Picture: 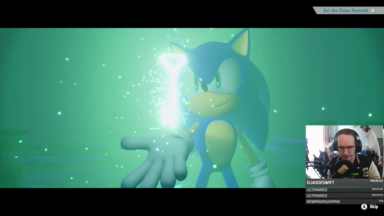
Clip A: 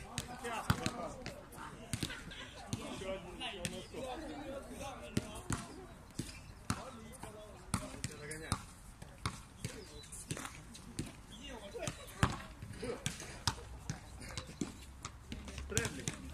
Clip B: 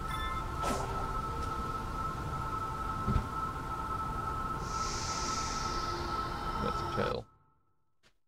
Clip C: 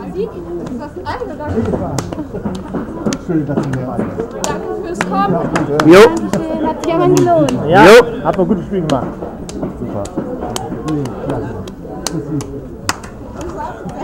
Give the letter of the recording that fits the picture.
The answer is B